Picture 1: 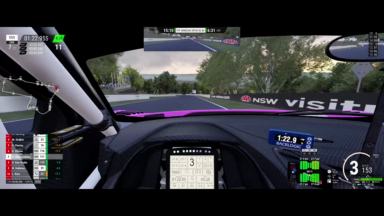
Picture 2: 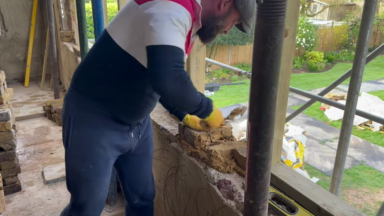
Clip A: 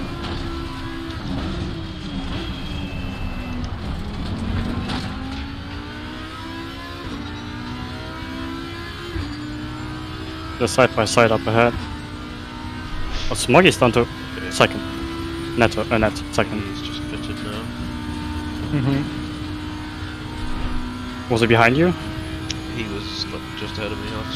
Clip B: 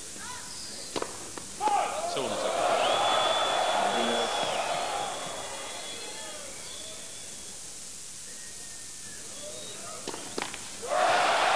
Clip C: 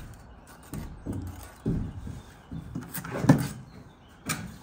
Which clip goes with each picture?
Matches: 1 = A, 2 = C